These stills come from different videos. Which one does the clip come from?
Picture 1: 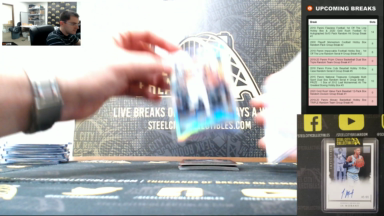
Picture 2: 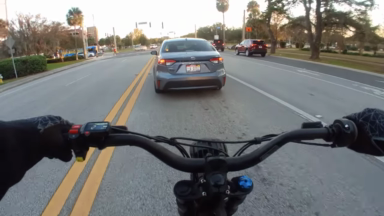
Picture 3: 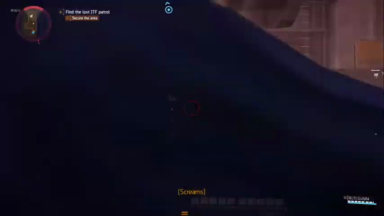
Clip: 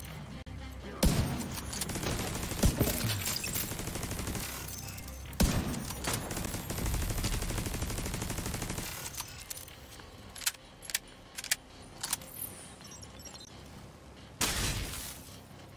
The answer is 3